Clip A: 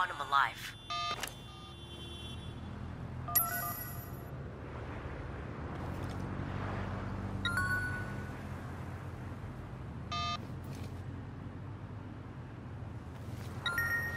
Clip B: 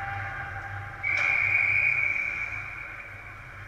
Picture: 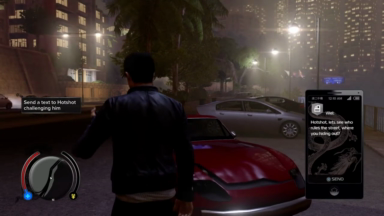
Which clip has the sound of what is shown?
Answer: A